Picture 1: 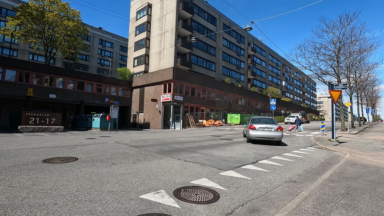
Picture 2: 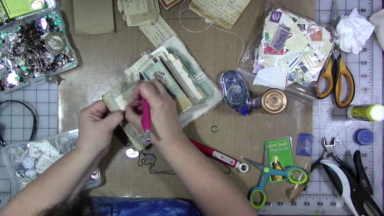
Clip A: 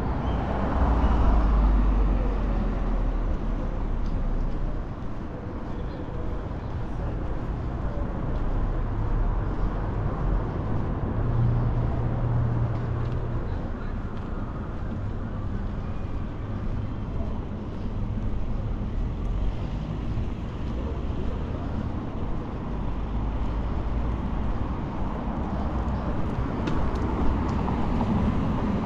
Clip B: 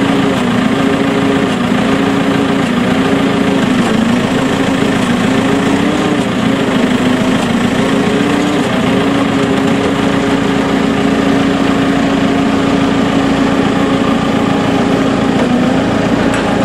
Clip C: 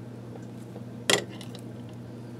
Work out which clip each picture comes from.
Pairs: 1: A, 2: C